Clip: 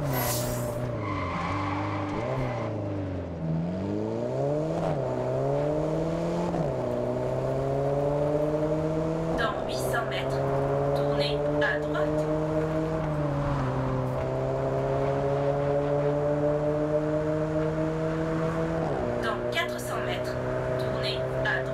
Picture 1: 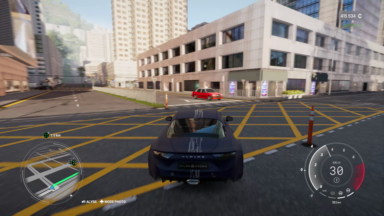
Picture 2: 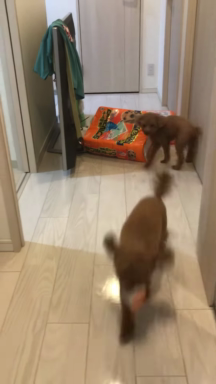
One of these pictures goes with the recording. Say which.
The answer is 1